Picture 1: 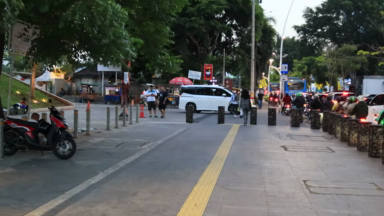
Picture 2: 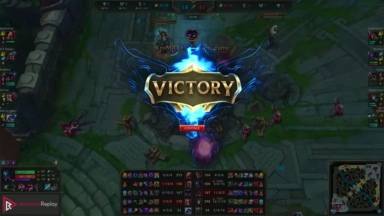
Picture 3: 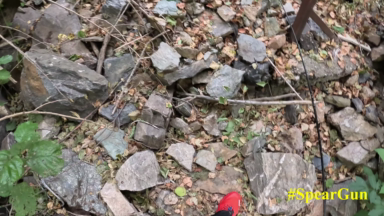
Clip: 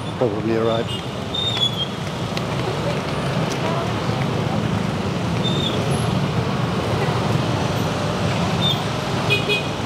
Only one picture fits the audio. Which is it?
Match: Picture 1